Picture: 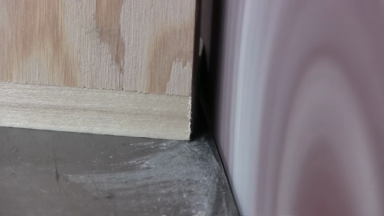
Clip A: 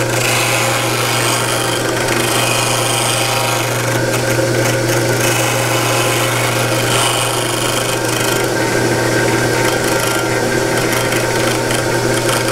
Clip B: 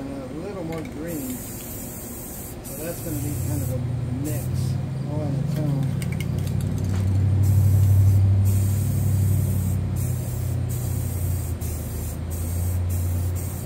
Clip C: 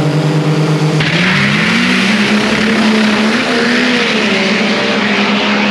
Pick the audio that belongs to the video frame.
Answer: A